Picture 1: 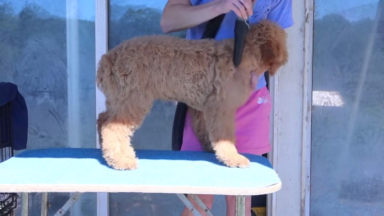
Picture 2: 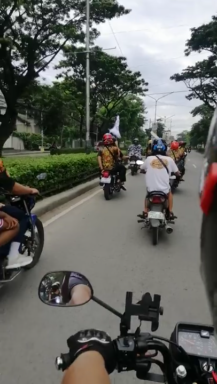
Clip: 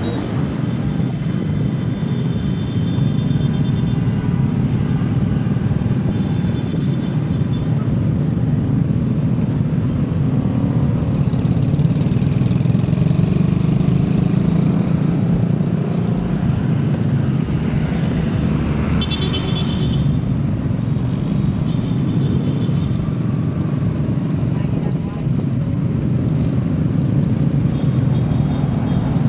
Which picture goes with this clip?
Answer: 2